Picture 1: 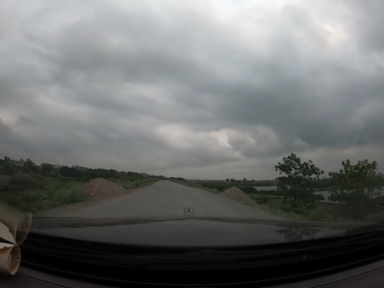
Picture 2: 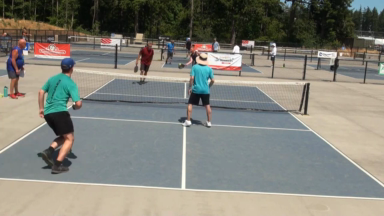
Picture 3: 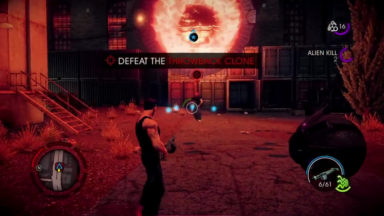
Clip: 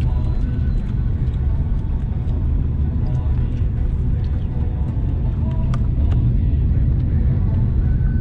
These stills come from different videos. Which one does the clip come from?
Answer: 1